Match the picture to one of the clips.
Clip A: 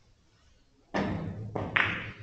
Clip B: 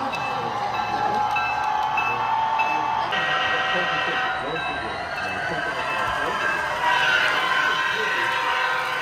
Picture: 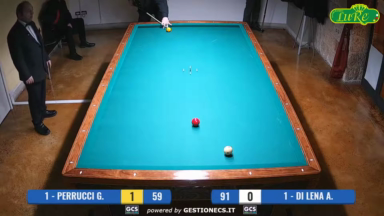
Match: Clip A